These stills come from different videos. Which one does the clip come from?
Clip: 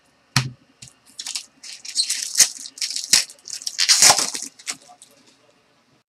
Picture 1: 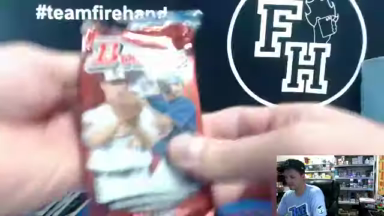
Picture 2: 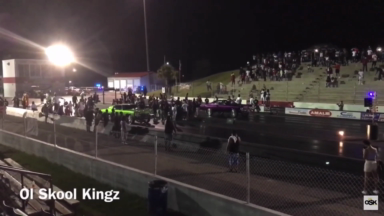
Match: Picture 1